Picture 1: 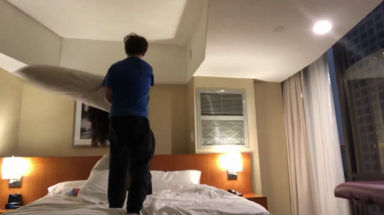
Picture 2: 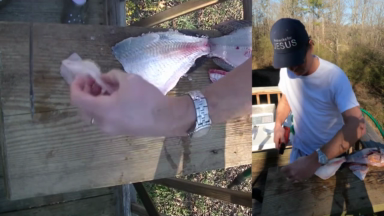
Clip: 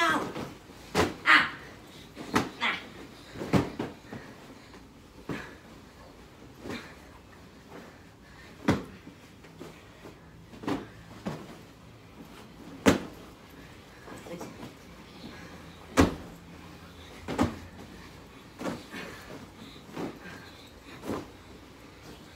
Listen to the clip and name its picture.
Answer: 1